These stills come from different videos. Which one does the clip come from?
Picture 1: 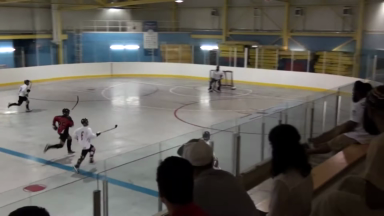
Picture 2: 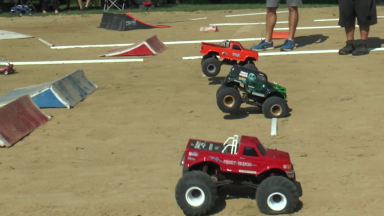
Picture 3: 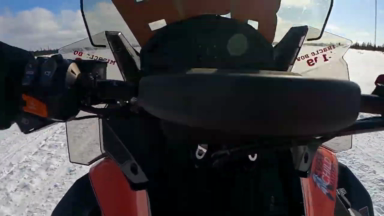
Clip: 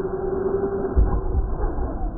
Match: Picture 2